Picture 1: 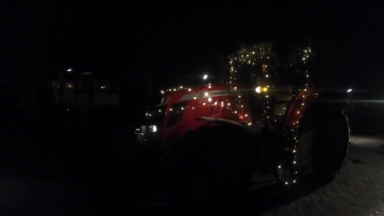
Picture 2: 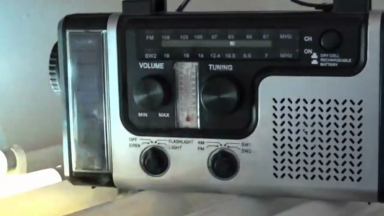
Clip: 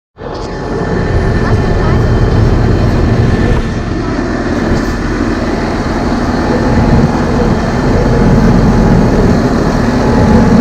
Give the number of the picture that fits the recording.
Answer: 1